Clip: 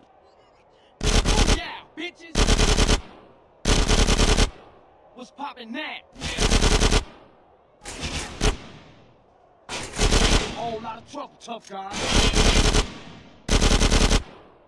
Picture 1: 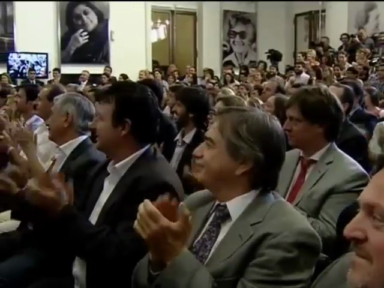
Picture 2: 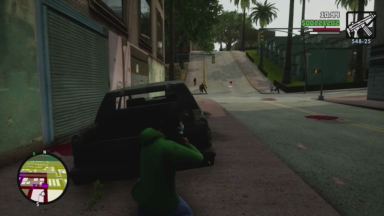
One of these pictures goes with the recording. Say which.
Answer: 2